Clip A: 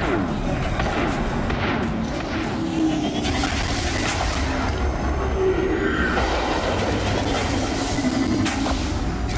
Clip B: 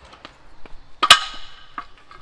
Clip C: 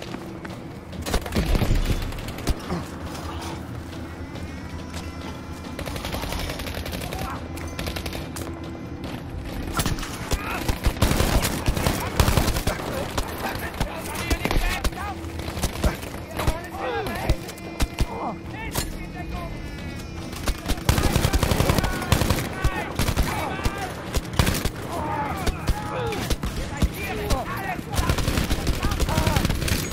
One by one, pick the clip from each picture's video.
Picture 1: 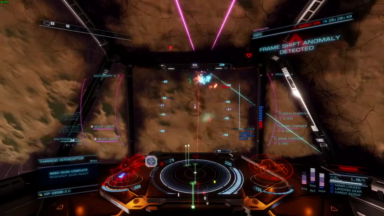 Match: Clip A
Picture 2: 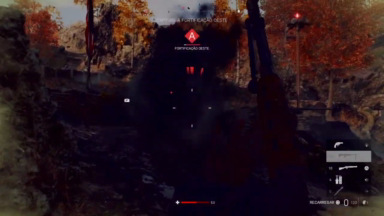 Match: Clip C